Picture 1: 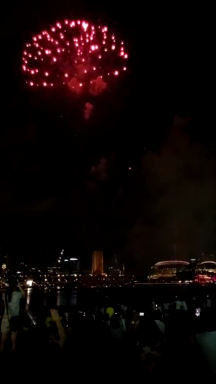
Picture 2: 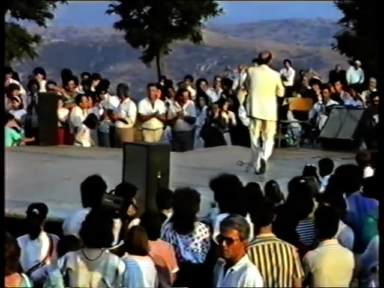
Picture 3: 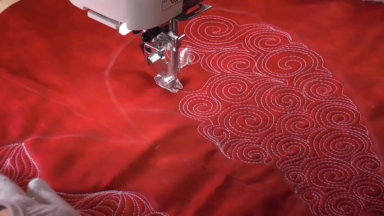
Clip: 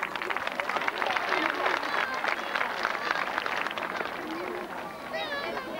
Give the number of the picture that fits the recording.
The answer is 2